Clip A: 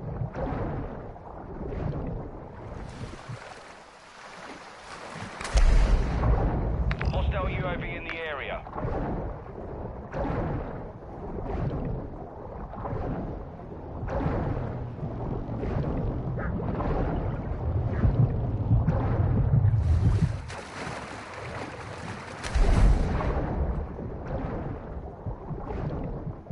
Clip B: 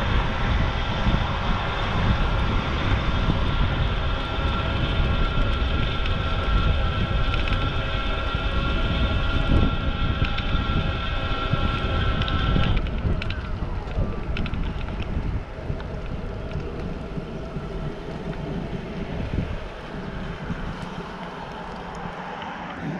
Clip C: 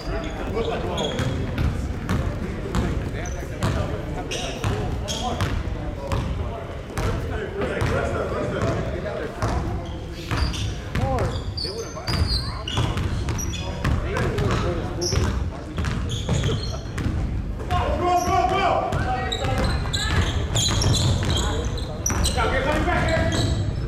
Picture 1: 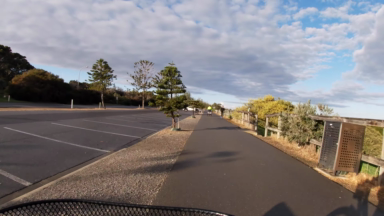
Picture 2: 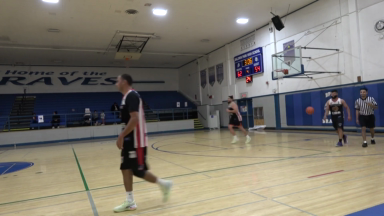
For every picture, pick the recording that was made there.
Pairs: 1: B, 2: C